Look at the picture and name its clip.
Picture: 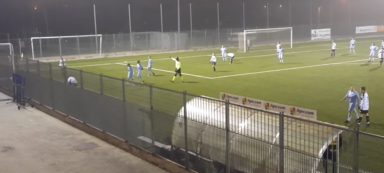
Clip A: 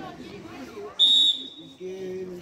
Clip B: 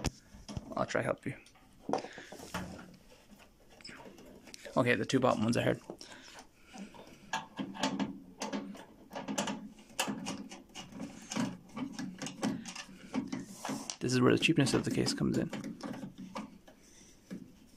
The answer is A